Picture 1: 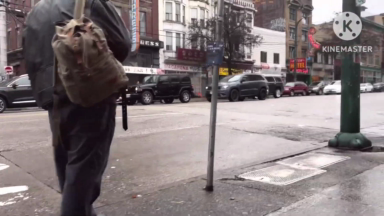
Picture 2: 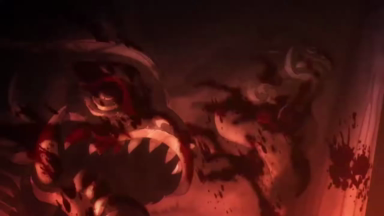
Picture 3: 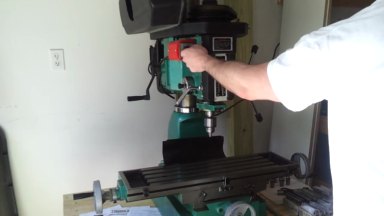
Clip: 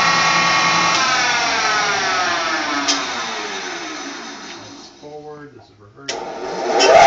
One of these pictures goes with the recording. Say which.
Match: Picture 3